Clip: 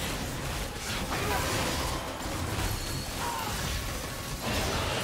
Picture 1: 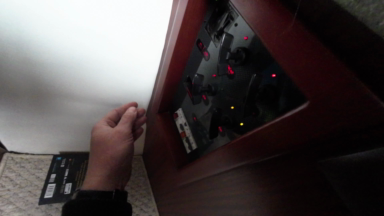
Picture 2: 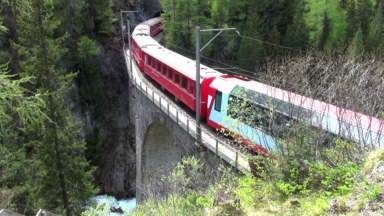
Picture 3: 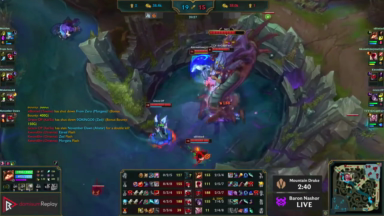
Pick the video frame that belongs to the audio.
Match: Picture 3